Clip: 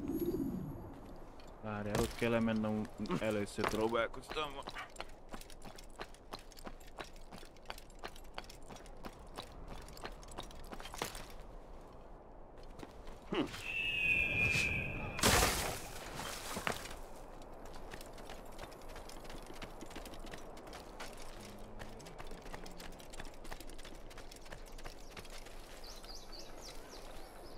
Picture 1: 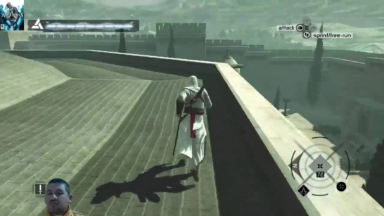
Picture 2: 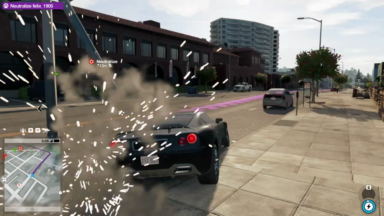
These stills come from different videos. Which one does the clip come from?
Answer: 1